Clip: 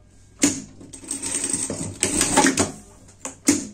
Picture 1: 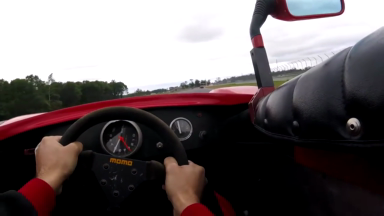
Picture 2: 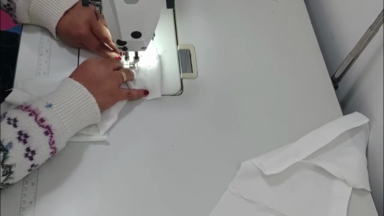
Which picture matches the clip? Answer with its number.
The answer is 2